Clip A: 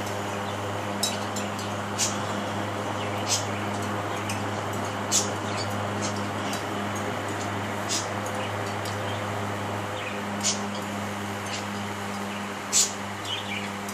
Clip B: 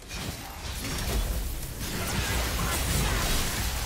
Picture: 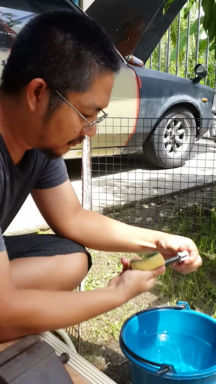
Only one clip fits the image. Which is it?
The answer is A